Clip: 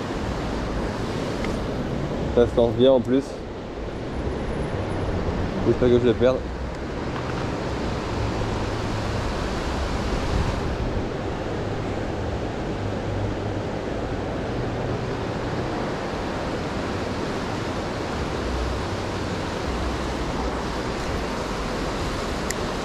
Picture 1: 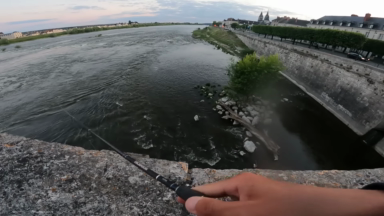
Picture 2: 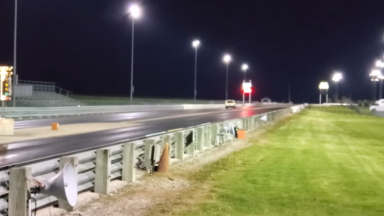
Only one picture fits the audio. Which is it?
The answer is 1